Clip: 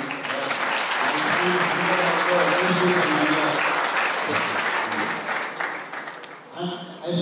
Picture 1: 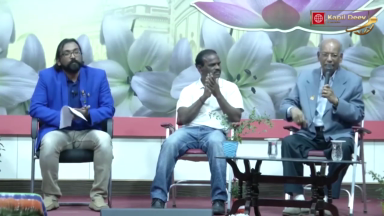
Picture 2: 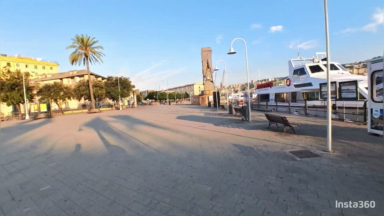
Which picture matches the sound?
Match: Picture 1